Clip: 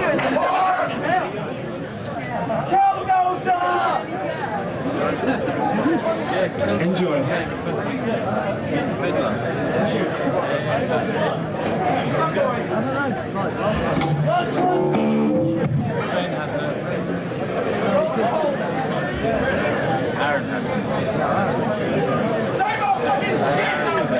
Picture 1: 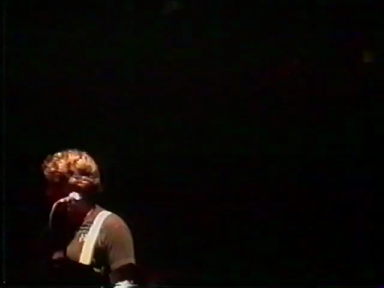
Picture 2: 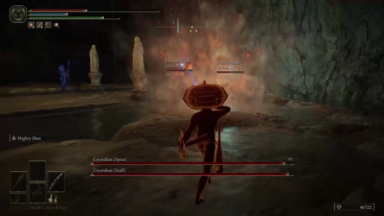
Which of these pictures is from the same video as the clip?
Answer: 1